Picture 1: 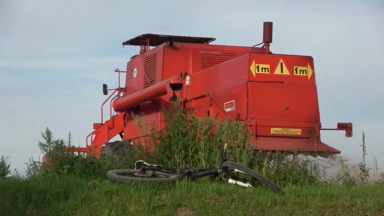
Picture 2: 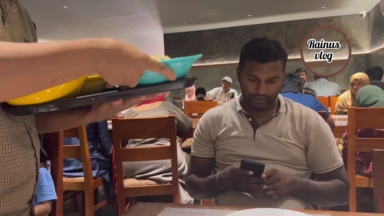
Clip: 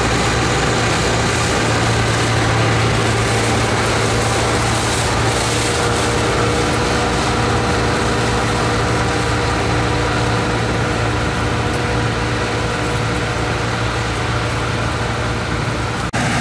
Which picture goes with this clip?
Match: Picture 1